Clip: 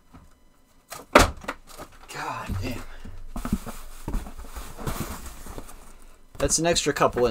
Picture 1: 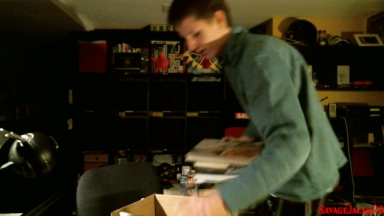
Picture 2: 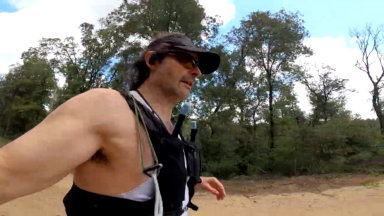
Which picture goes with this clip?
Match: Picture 1